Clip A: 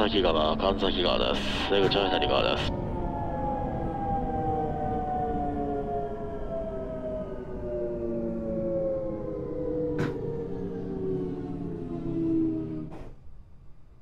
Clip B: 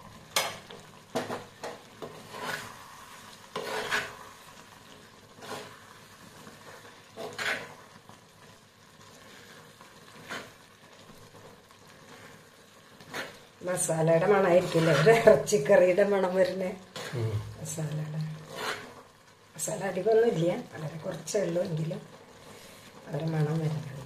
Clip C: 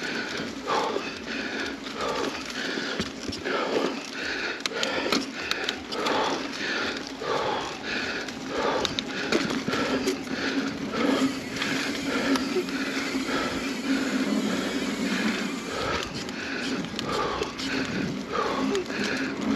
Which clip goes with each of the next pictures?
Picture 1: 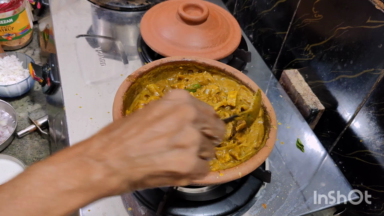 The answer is B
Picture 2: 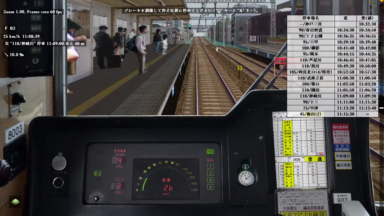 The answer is A